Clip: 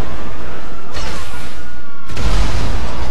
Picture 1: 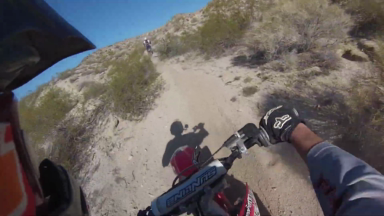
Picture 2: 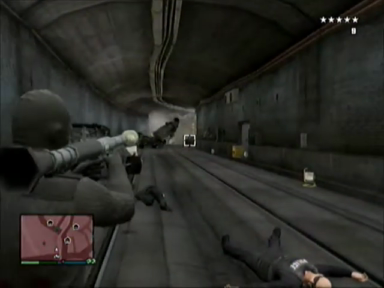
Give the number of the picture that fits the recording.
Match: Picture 2